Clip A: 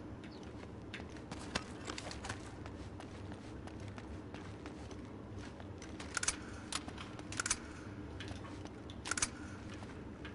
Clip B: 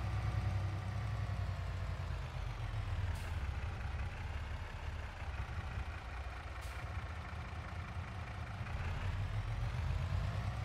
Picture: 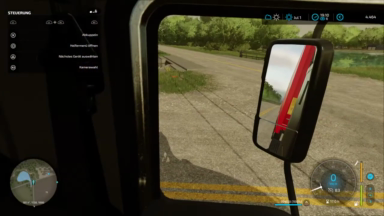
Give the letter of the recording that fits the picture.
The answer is B